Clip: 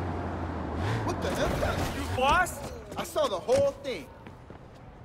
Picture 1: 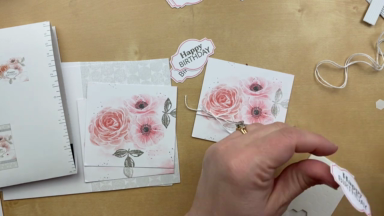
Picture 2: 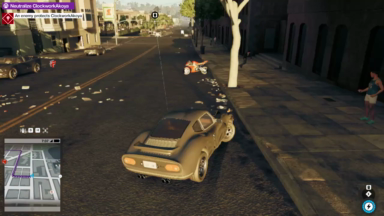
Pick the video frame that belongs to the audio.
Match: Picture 2